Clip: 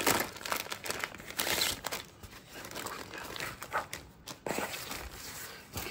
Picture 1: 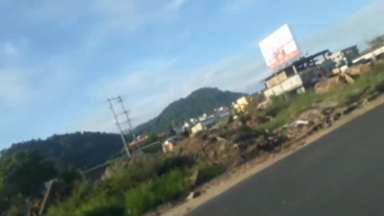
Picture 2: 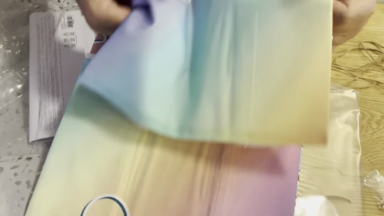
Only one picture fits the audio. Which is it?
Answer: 2